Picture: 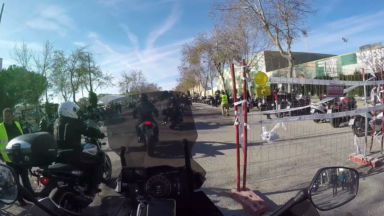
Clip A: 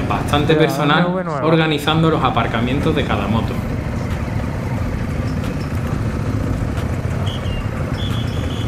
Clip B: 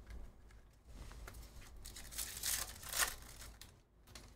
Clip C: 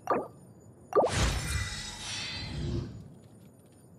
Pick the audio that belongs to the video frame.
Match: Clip A